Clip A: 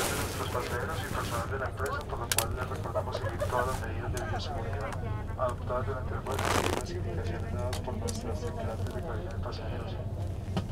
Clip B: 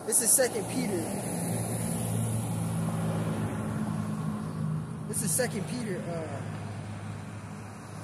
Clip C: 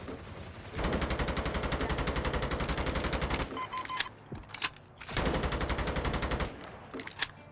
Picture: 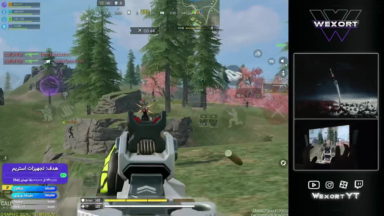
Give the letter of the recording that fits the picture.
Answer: C